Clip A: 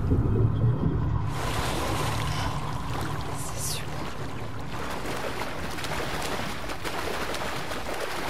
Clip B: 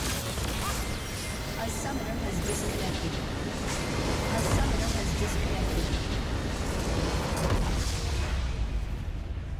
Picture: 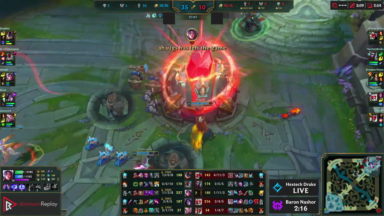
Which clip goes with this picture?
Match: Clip B